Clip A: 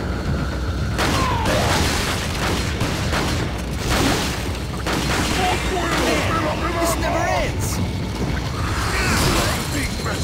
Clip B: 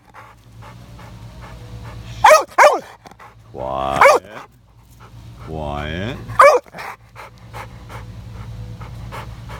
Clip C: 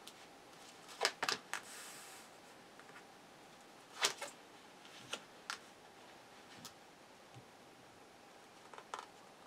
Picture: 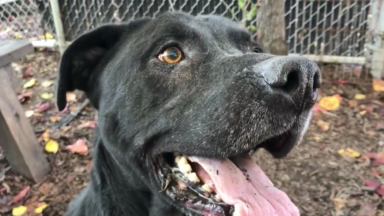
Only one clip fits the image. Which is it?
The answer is B